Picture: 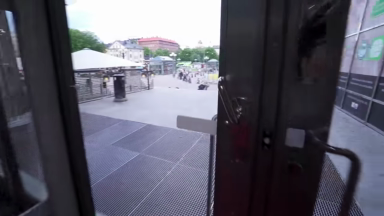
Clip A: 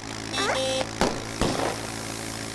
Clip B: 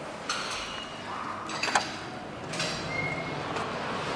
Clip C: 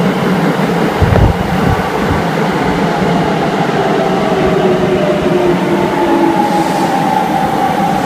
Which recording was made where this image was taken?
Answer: B